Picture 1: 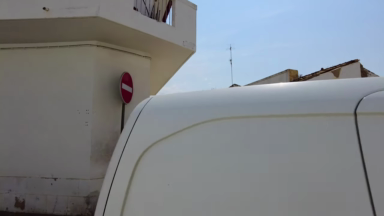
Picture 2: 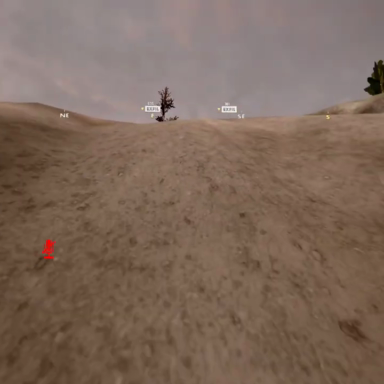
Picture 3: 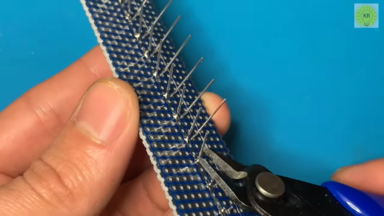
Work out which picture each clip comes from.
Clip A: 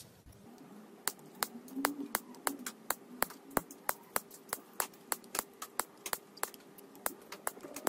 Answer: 3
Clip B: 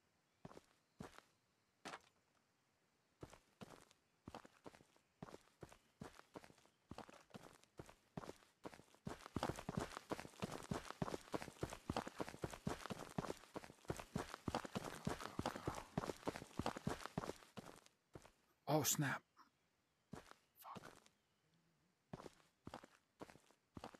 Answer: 2